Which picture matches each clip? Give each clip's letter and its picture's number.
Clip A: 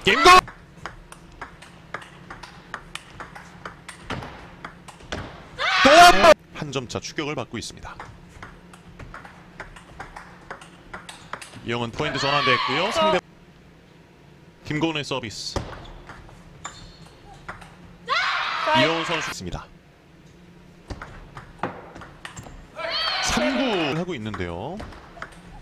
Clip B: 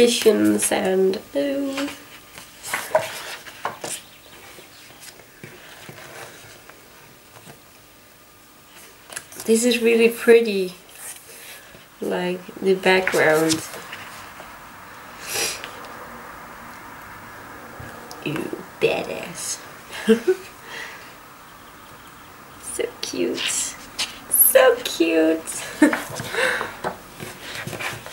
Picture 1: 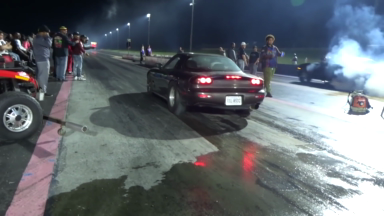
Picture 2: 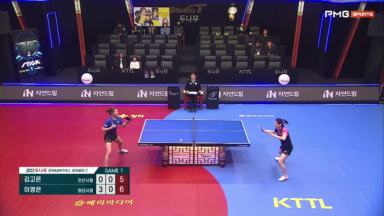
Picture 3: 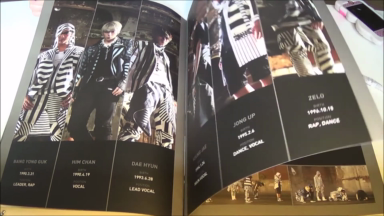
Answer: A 2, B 3